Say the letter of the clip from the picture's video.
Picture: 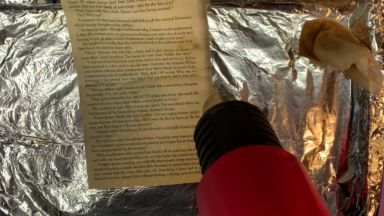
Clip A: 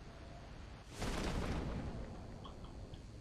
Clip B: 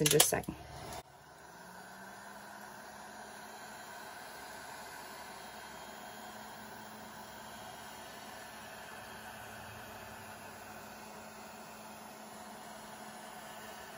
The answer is B